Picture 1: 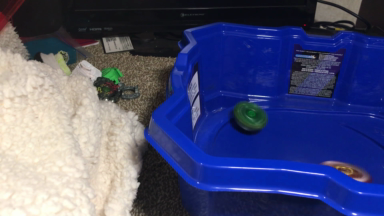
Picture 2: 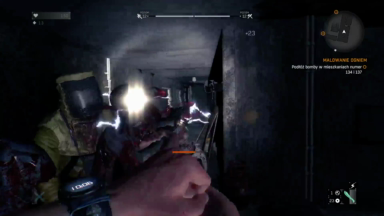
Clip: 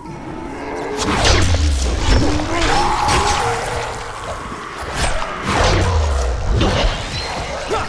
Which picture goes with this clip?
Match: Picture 2